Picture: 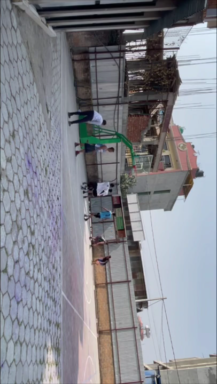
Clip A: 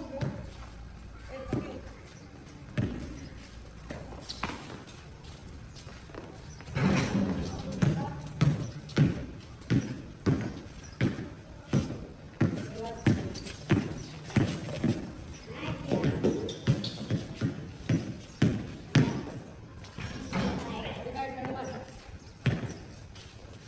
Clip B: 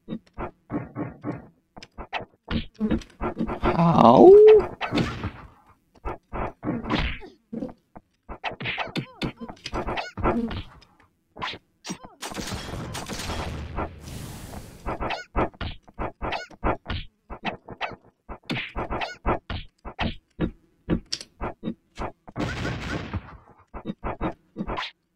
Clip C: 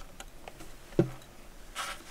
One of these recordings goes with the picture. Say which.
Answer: A